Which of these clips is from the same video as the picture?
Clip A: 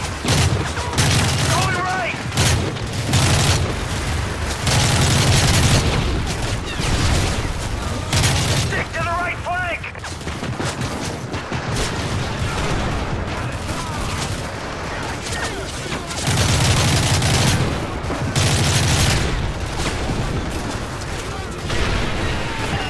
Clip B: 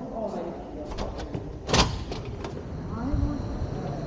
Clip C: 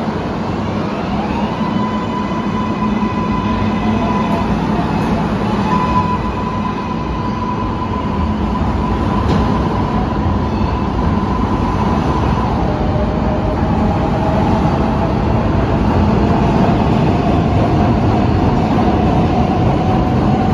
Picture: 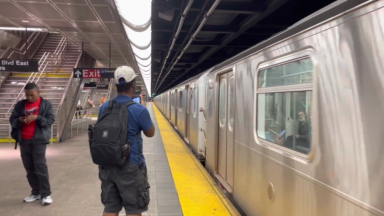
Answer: C